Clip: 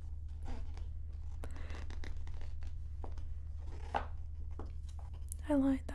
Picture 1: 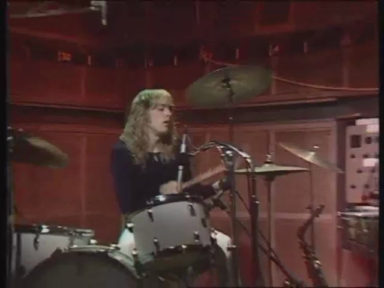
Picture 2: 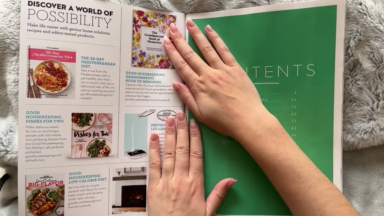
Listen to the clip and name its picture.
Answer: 2